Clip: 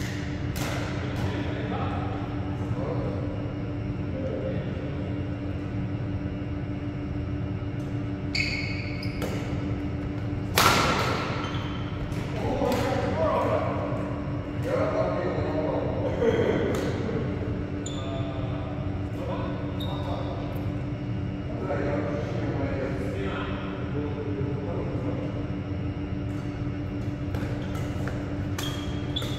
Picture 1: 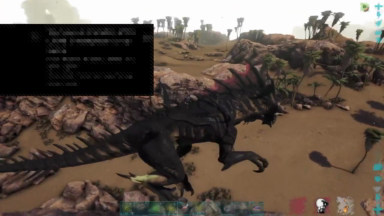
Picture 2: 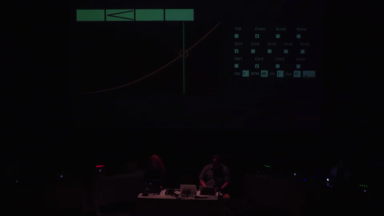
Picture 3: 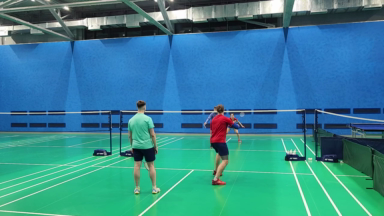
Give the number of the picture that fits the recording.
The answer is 3